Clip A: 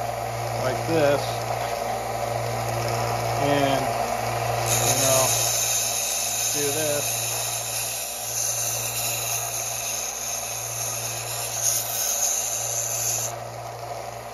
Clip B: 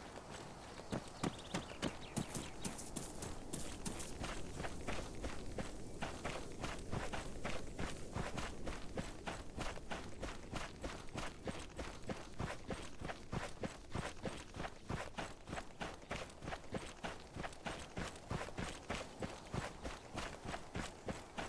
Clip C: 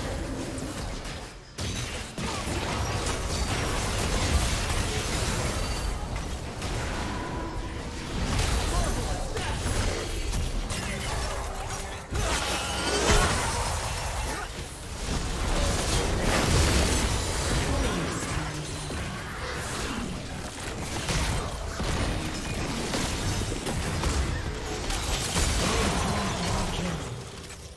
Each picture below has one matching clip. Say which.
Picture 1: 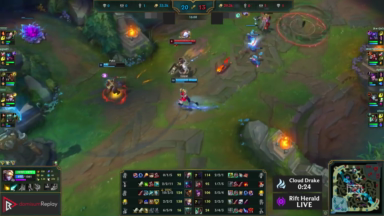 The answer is C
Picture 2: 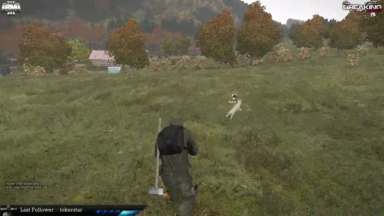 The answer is B